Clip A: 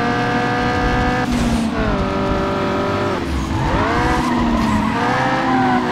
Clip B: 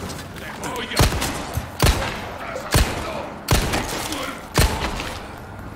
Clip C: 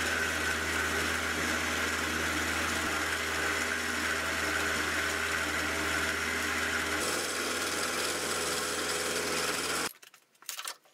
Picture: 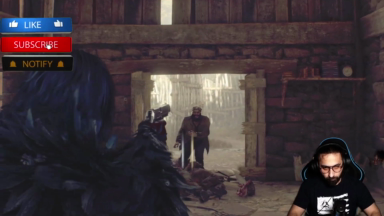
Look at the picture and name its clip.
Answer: B